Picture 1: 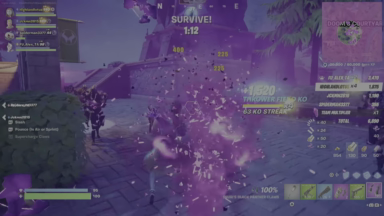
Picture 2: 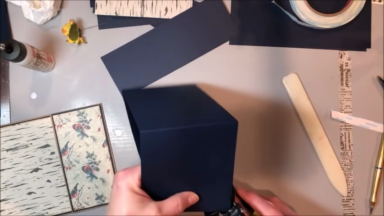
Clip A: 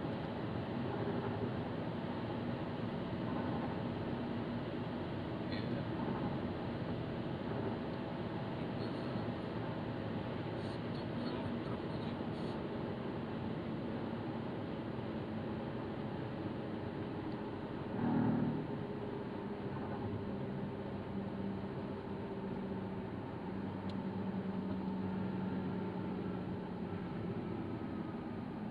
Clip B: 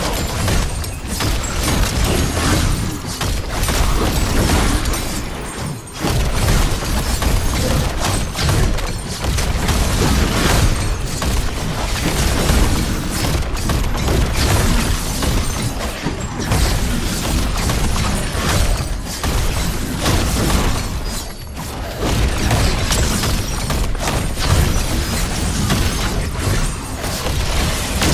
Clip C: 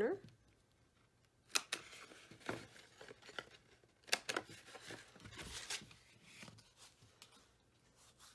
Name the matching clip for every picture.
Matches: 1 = B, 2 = C